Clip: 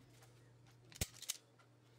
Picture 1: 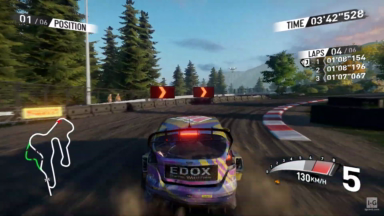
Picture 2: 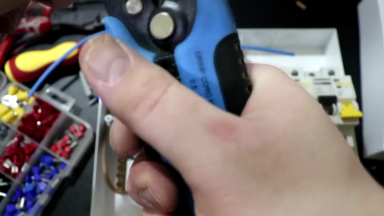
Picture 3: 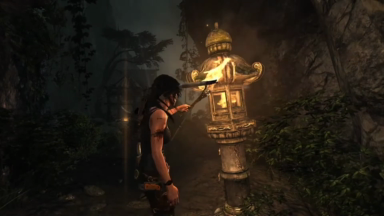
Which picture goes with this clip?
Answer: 2